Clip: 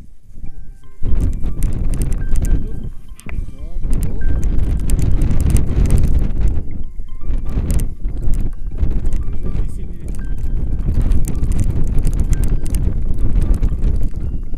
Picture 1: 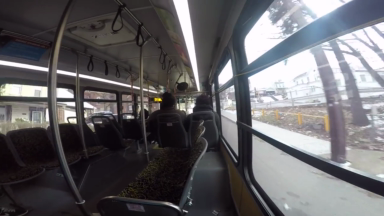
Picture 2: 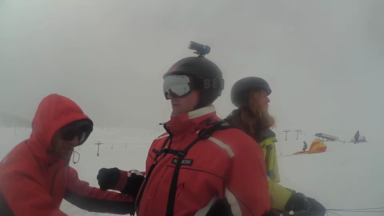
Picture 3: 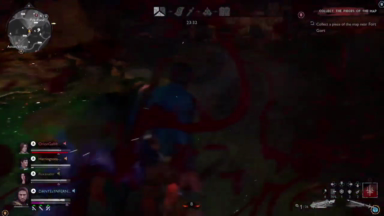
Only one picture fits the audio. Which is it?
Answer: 2